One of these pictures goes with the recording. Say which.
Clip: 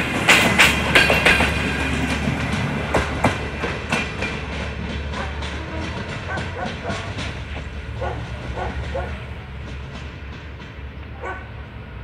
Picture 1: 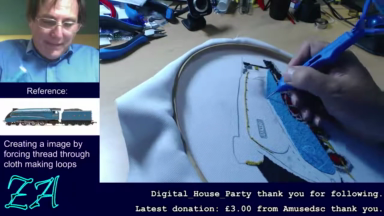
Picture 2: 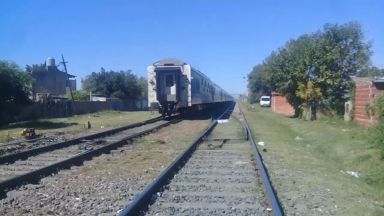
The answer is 2